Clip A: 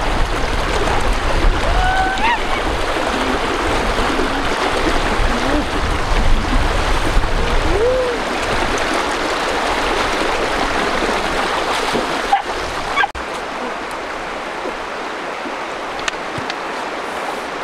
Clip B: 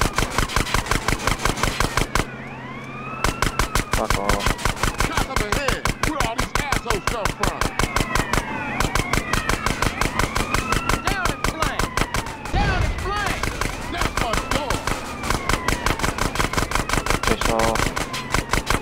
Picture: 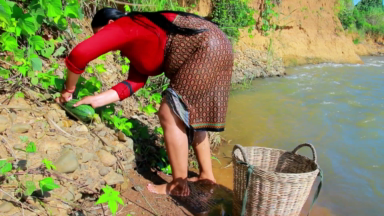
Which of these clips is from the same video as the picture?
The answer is A